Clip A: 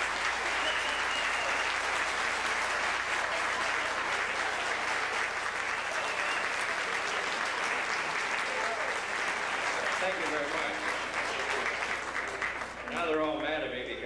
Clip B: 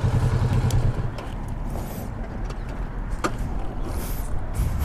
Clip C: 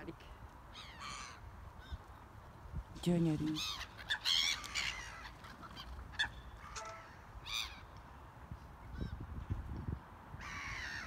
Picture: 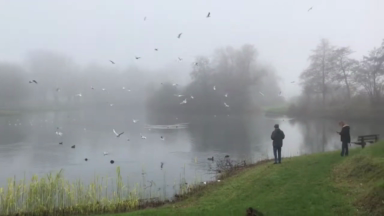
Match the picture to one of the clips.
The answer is C